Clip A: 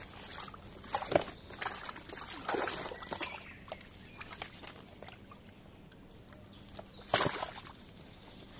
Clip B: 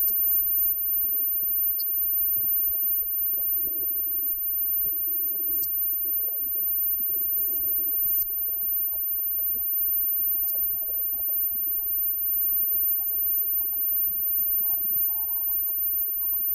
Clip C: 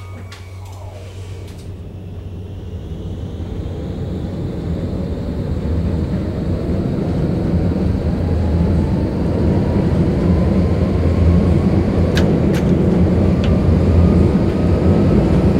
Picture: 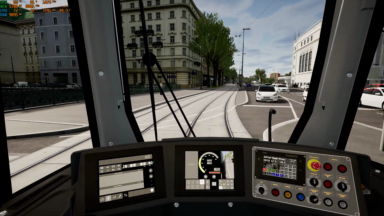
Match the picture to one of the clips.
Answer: C